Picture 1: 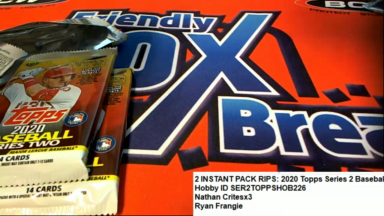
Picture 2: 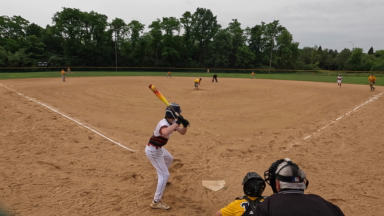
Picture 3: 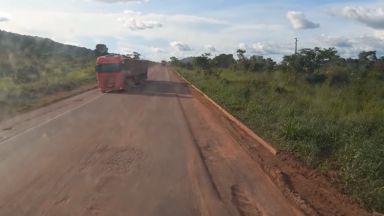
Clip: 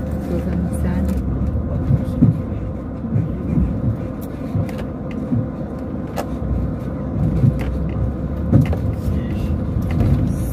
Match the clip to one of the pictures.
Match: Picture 3